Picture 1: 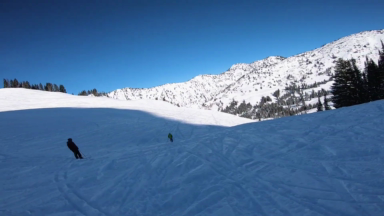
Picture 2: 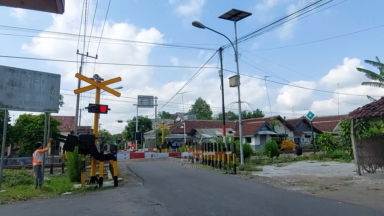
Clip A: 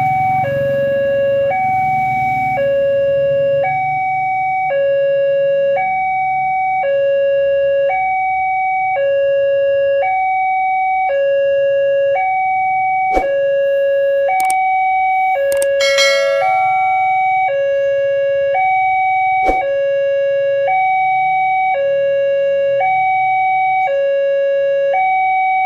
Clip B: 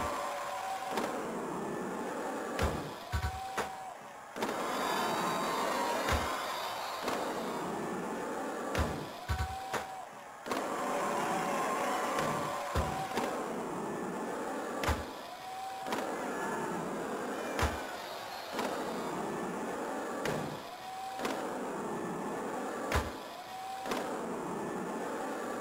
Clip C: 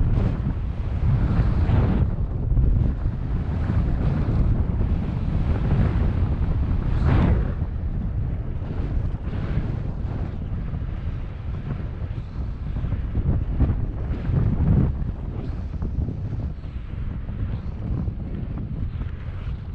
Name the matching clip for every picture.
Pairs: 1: C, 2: A